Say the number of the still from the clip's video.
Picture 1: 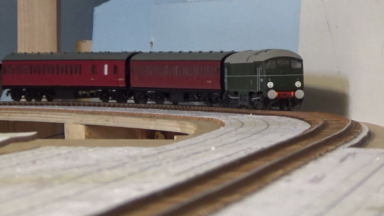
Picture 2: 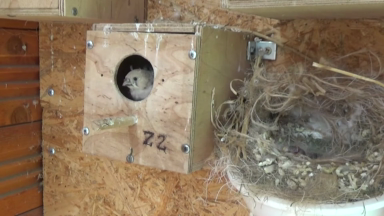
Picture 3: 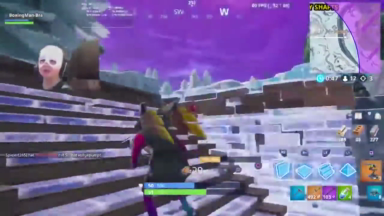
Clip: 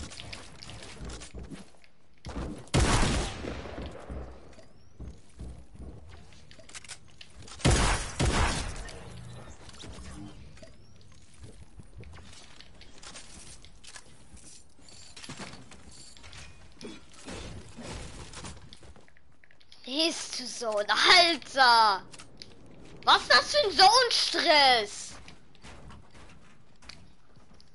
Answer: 3